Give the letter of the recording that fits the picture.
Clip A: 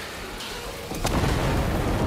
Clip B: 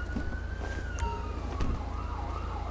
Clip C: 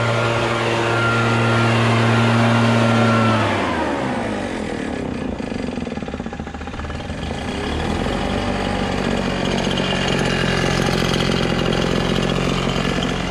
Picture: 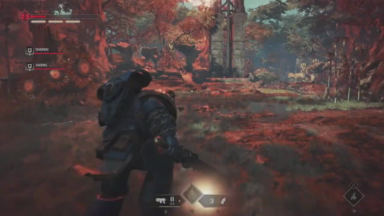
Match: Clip A